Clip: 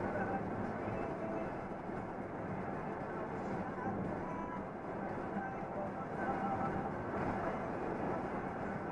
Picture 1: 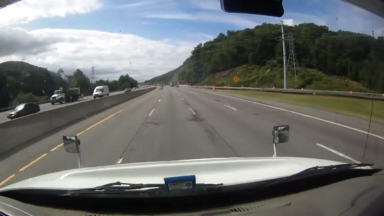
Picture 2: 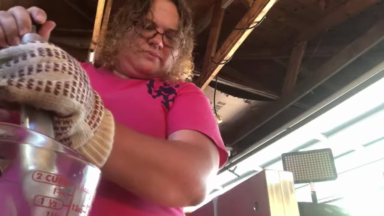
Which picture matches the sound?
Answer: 1